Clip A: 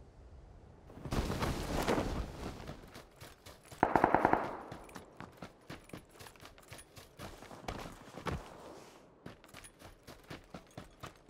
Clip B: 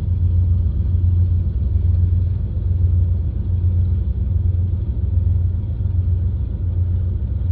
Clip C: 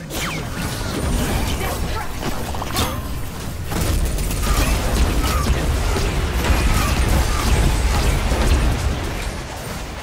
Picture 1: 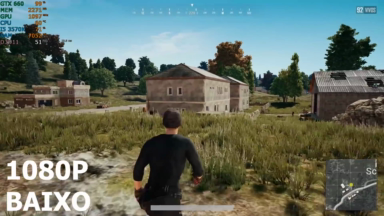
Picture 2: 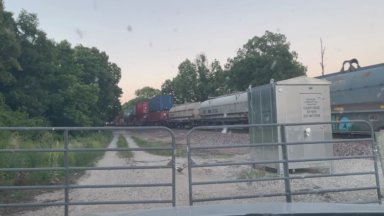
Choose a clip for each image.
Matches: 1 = A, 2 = B